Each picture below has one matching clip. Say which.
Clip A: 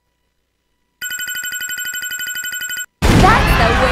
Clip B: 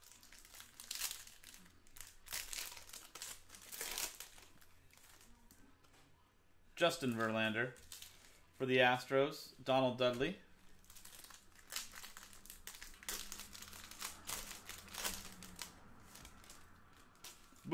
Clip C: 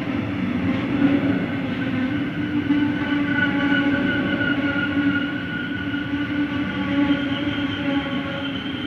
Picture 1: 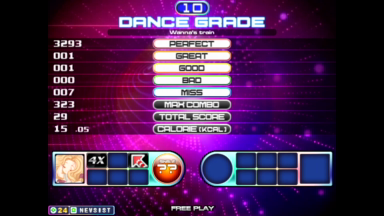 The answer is A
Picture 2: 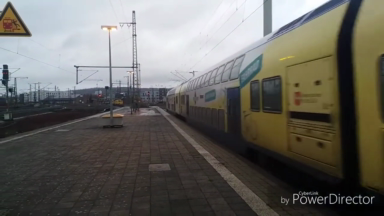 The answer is C